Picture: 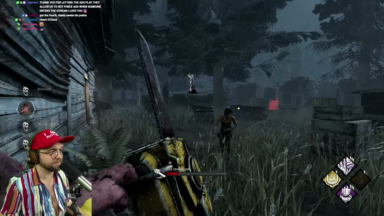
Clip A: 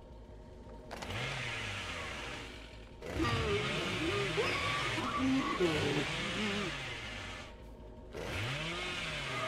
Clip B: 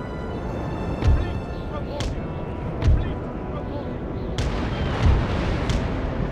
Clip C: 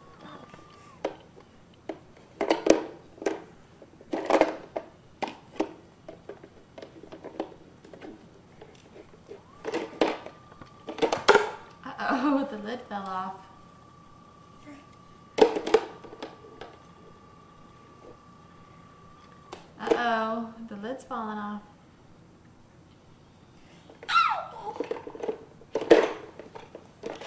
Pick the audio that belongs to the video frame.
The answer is A